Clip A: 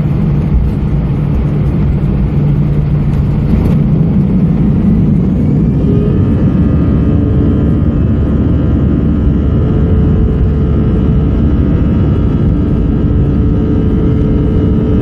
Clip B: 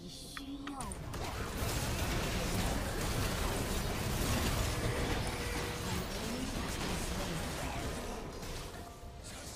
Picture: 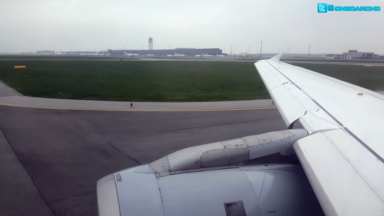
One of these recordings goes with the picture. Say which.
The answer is A